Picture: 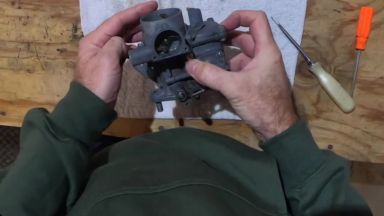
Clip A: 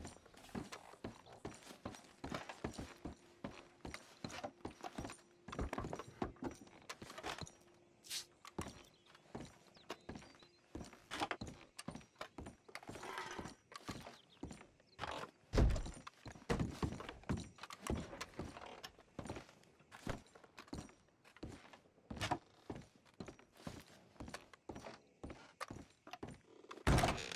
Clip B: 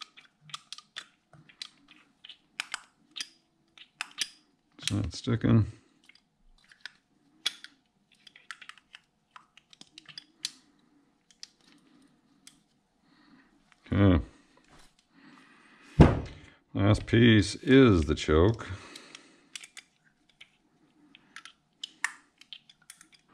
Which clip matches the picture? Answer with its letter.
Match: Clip B